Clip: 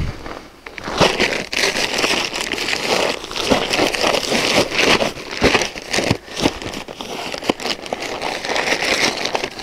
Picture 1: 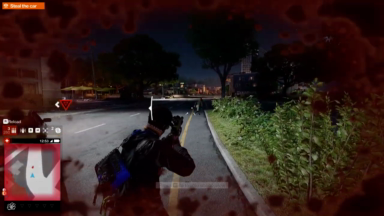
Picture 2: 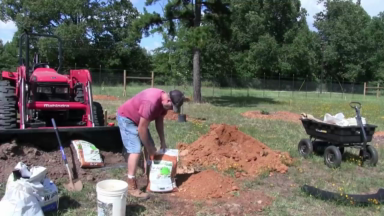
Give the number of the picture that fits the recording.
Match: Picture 2